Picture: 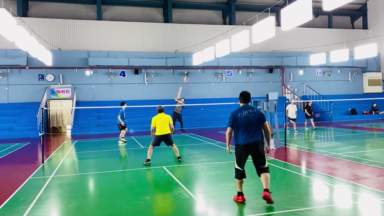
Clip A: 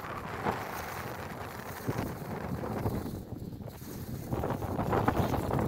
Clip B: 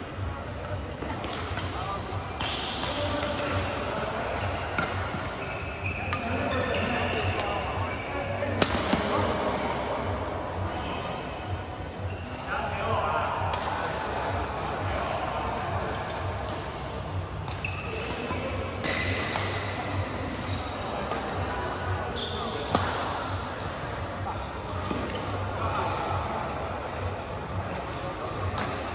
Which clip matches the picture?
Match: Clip B